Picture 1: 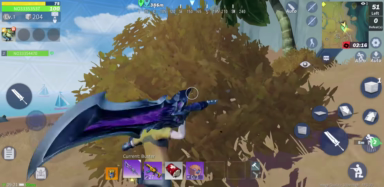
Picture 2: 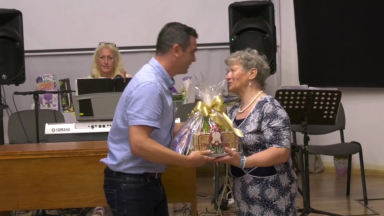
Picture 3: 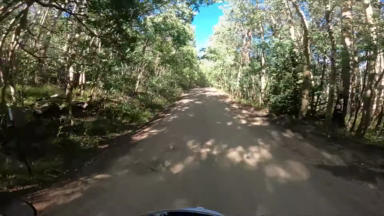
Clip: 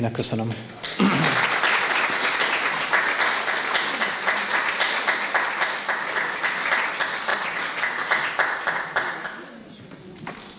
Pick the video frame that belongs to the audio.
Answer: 2